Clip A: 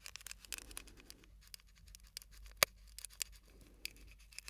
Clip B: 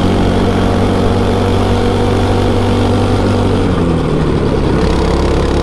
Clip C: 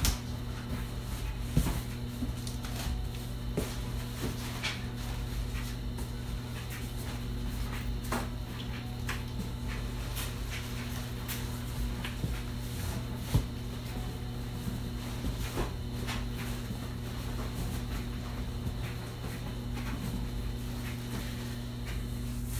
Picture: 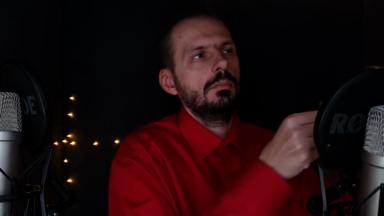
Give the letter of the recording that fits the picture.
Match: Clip A